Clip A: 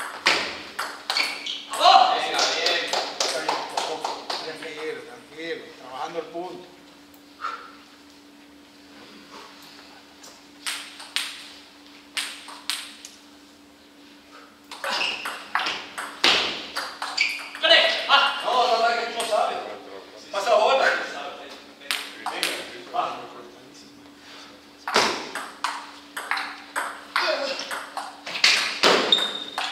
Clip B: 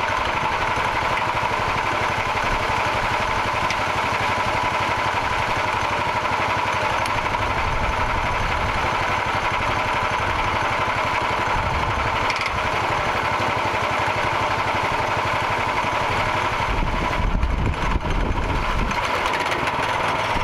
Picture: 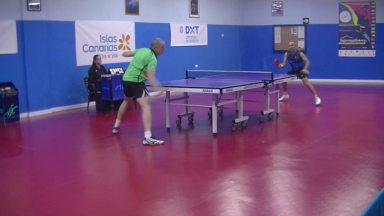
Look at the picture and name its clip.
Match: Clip A